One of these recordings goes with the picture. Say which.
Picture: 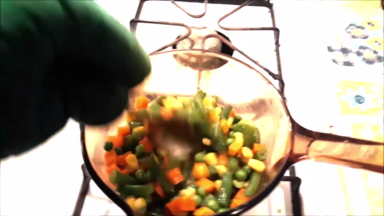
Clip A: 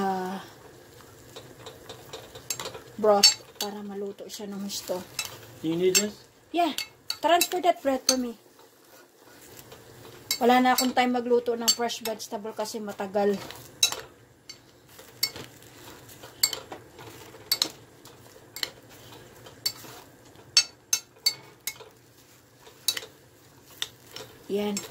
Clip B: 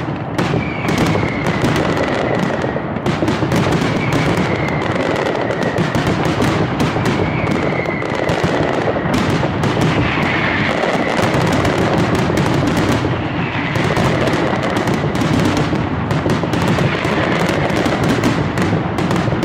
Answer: A